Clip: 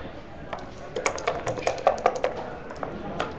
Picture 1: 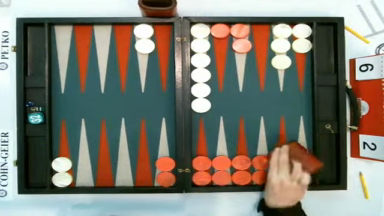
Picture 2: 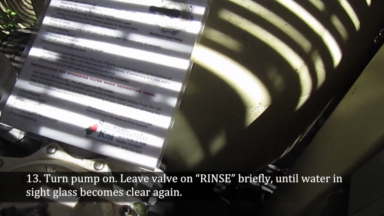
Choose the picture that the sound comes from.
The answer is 1